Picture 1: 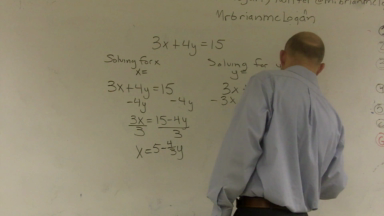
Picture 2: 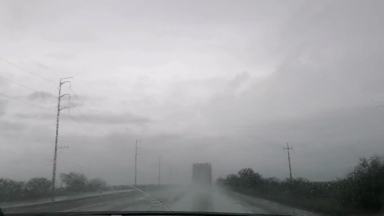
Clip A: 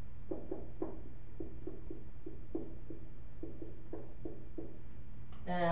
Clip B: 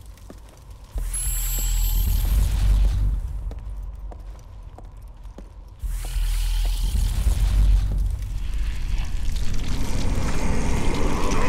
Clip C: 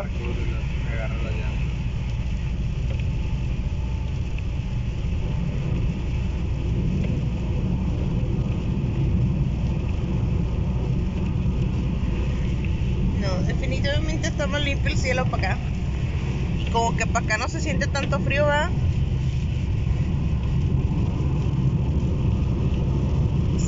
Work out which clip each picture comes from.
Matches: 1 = A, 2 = C